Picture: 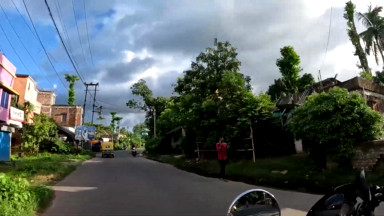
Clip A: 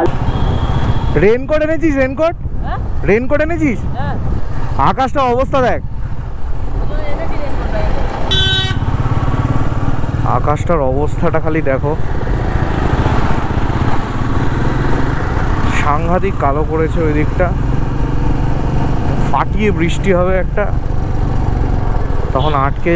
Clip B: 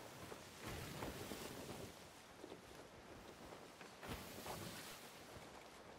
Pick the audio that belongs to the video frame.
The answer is A